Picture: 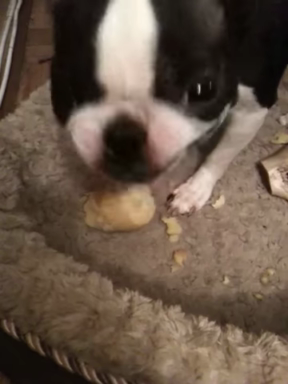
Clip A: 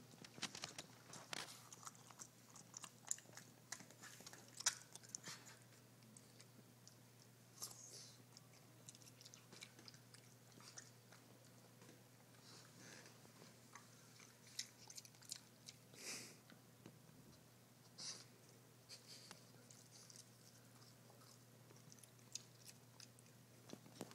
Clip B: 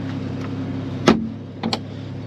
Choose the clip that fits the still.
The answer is A